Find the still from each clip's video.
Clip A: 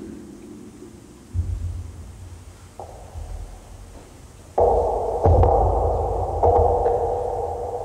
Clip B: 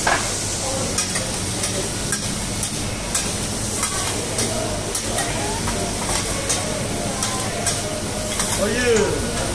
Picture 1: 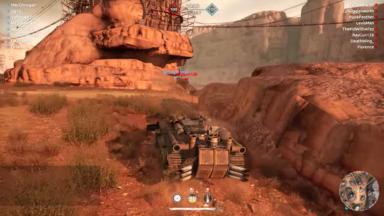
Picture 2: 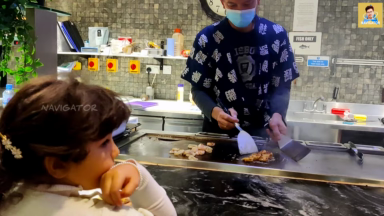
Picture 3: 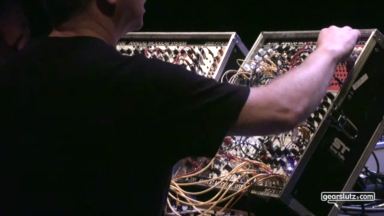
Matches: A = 3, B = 2